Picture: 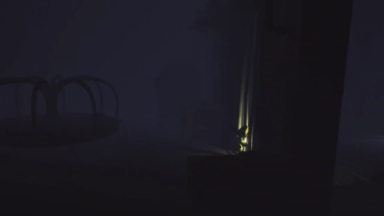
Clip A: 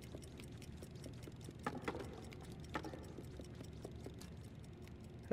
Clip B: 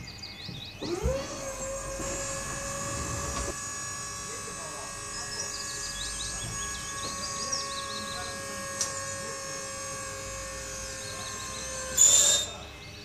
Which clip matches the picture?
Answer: A